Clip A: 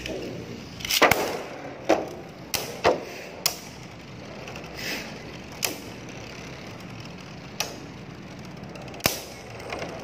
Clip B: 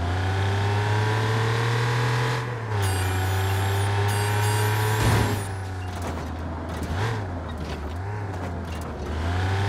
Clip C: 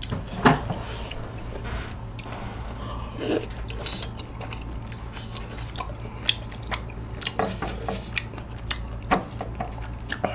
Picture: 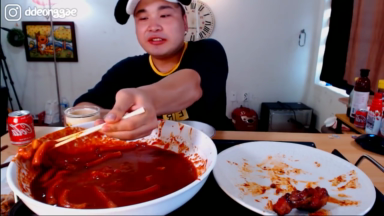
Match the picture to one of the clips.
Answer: C